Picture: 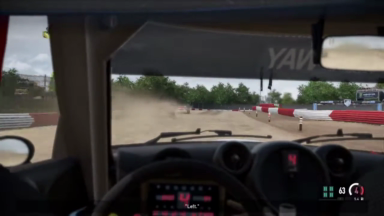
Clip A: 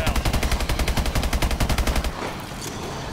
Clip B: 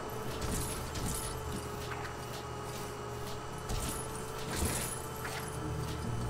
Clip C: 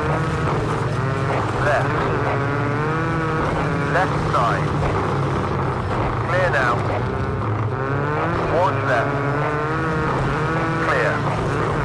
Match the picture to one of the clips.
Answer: C